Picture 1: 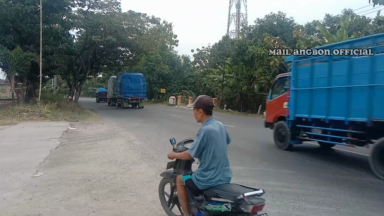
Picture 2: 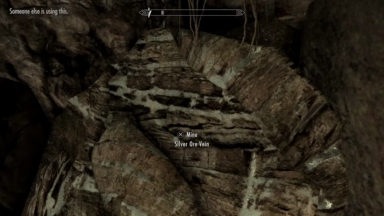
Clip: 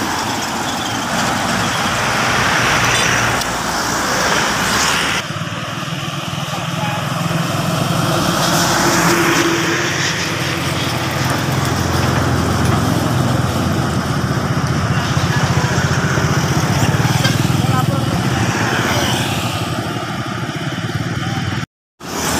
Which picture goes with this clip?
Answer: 1